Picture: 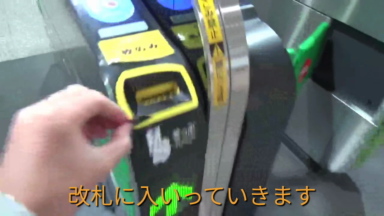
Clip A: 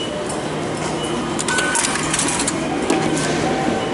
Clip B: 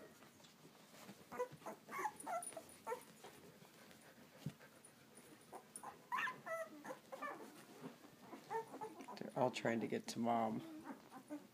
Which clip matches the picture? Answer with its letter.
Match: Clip A